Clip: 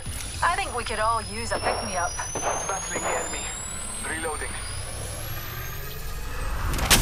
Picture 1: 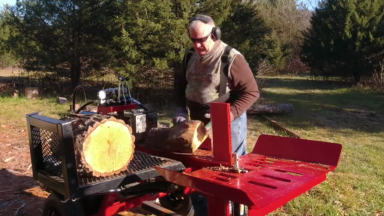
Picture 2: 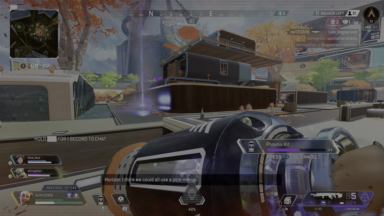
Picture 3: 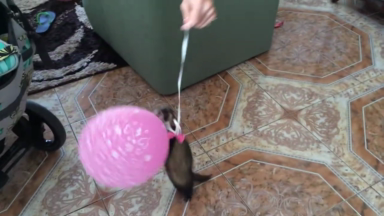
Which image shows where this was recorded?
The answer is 2